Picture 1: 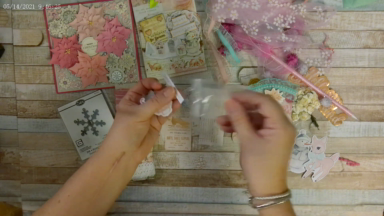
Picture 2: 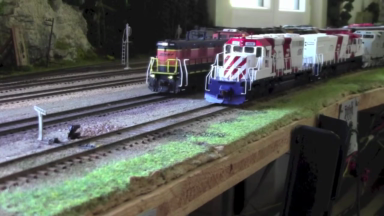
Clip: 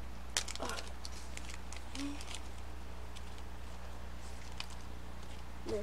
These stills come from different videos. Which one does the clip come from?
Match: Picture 1